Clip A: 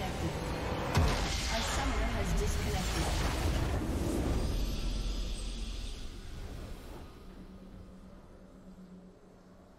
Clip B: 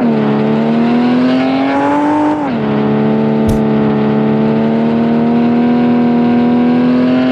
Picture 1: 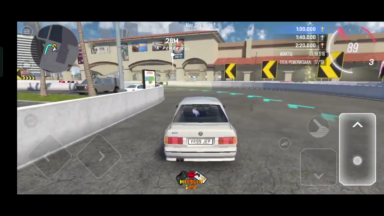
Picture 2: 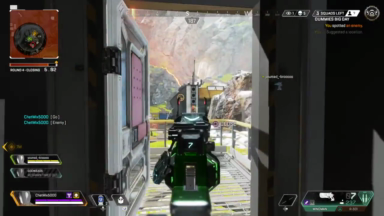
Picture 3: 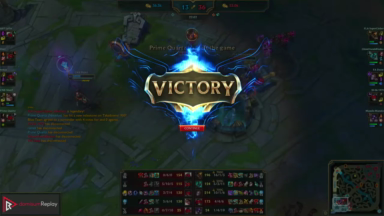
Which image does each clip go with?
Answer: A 3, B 1